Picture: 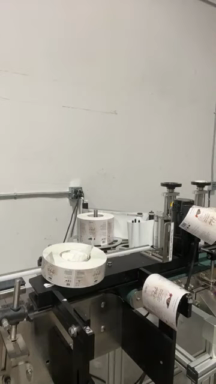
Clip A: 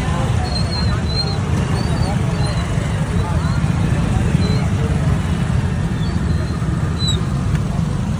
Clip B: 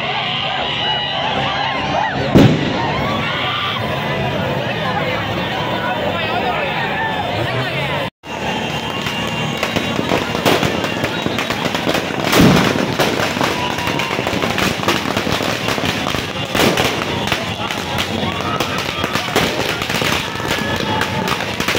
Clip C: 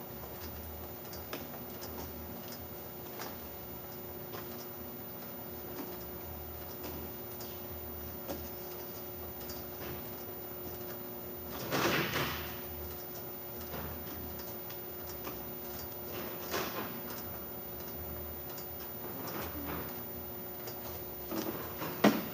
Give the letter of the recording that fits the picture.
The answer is C